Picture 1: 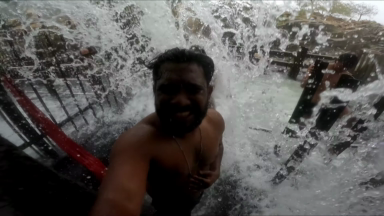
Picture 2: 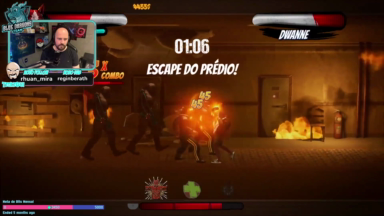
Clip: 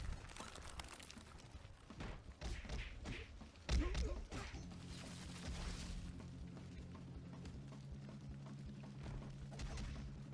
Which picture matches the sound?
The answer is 2